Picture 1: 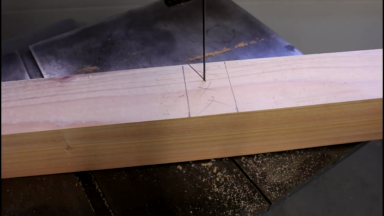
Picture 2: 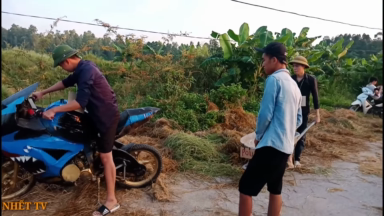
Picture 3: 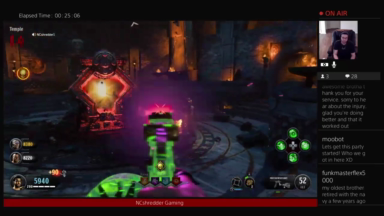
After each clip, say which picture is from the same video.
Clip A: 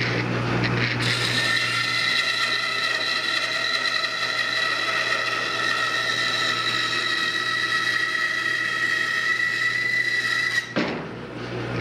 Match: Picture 1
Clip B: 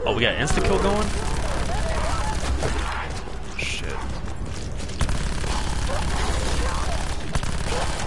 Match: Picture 3